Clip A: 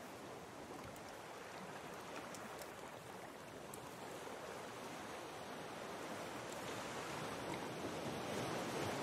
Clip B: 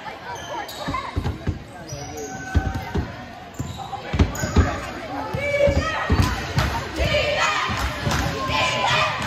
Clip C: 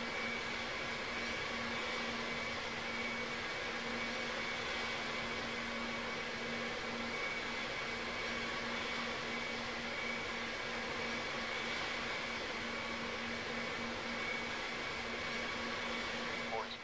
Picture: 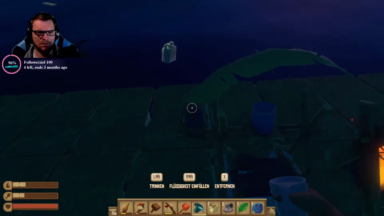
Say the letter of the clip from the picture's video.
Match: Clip A